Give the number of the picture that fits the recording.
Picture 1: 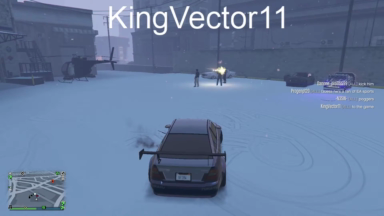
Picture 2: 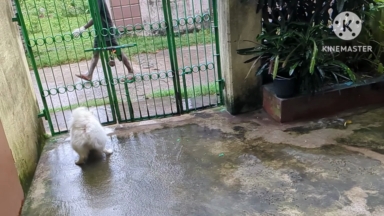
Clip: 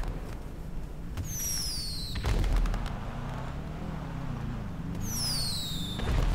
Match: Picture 1